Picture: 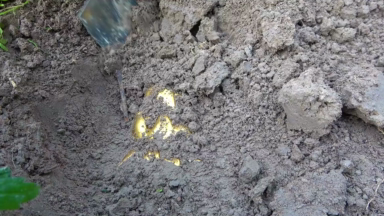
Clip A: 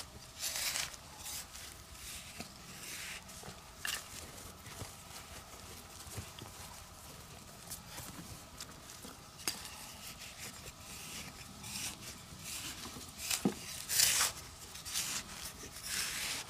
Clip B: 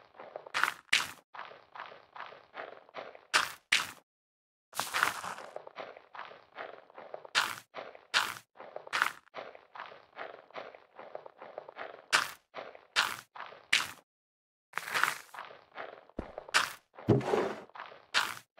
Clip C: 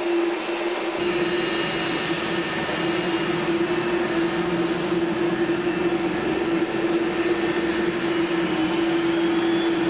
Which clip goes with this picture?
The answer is A